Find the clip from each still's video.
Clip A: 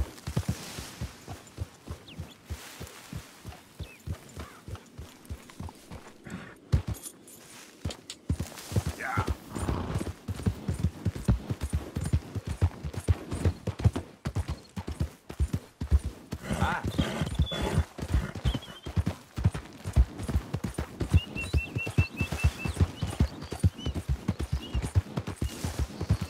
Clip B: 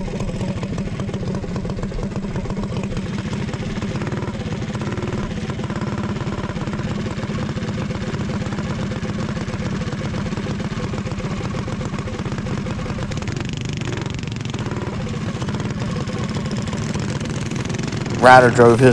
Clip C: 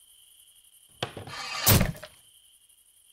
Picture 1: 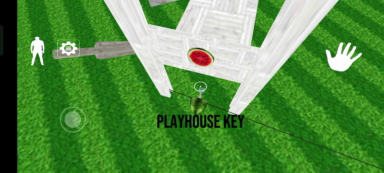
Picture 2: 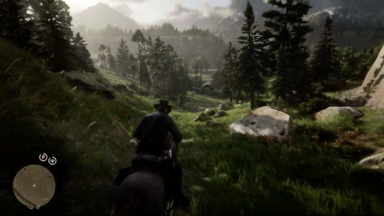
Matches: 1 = C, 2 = A